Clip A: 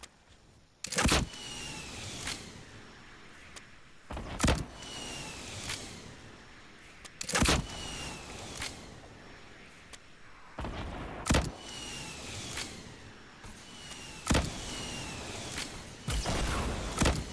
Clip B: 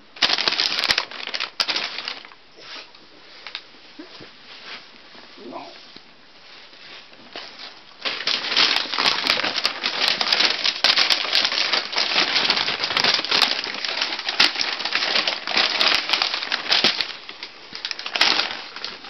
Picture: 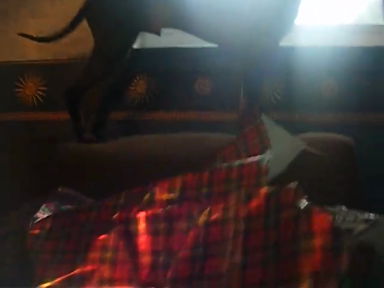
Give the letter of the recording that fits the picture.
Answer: B